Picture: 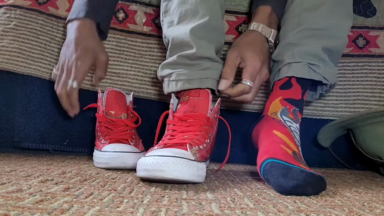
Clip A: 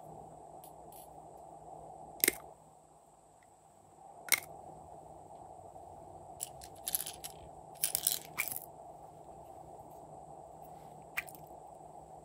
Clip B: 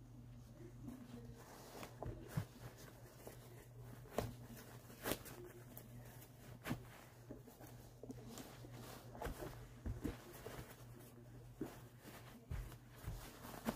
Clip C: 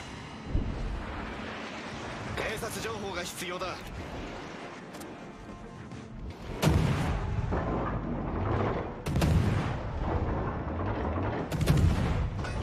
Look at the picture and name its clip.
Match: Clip B